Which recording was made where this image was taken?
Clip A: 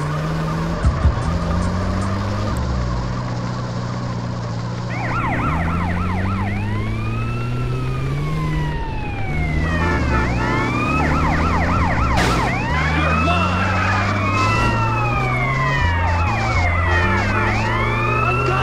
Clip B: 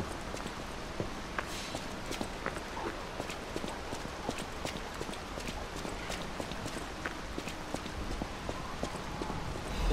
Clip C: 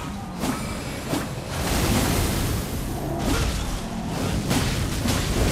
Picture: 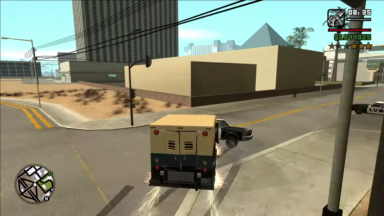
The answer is A